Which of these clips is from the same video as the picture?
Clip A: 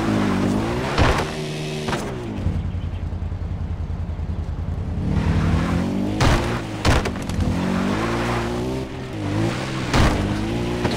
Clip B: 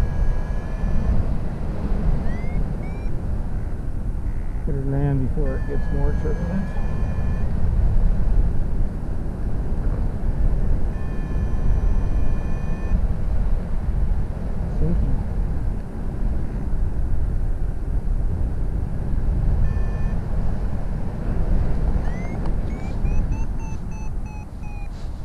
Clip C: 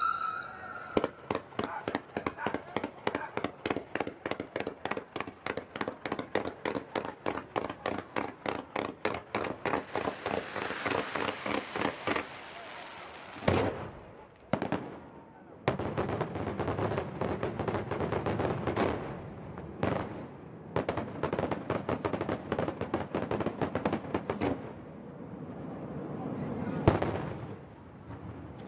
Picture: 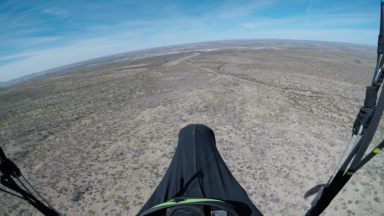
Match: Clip B